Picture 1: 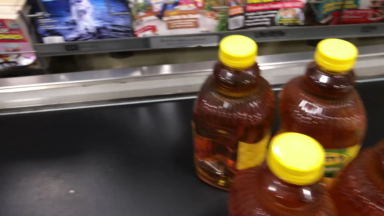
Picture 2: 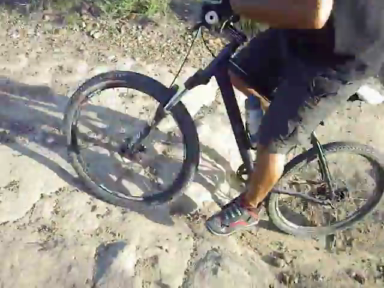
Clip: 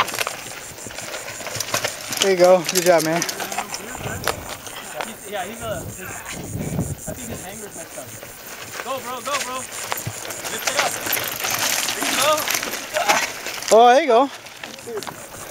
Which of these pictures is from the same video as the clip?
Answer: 2